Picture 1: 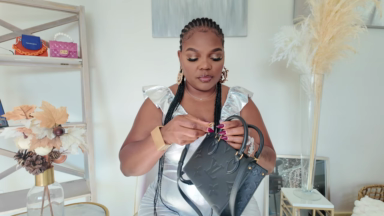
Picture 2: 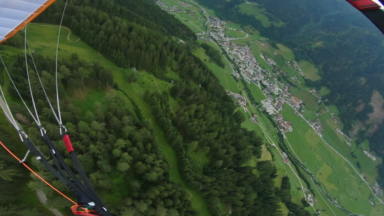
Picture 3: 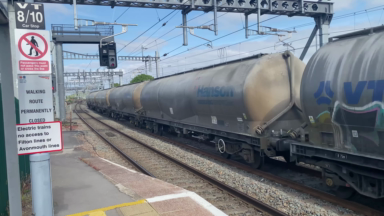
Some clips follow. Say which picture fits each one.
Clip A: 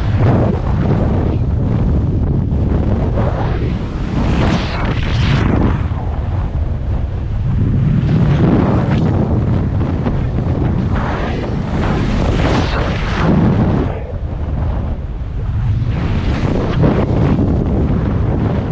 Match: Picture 2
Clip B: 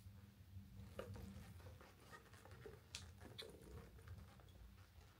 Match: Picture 1